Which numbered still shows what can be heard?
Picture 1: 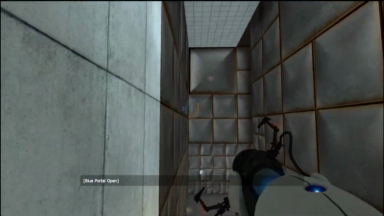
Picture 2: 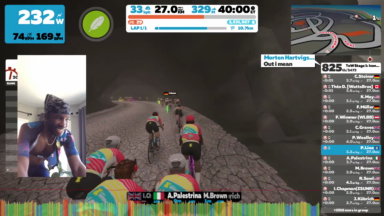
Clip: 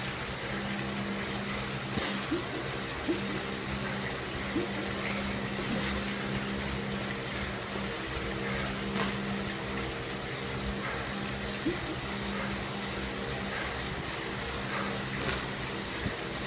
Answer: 2